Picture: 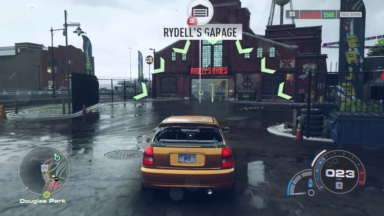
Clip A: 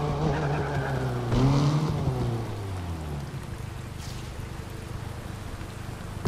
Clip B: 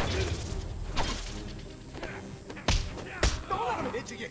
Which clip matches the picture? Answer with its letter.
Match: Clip A